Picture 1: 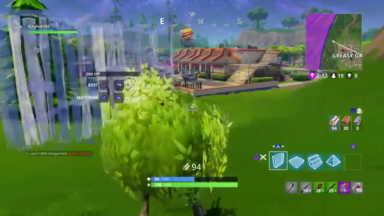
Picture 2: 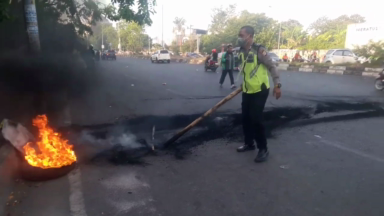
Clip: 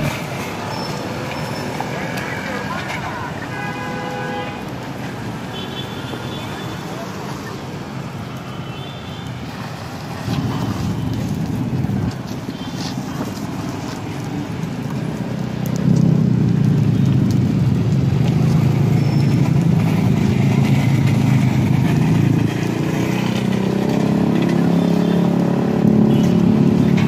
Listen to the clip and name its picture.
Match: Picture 2